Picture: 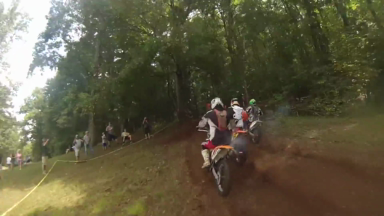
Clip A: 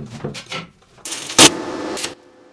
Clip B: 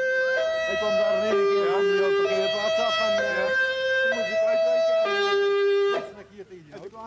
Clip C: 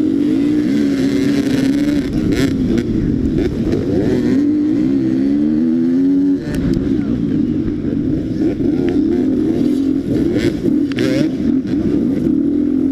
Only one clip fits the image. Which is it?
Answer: C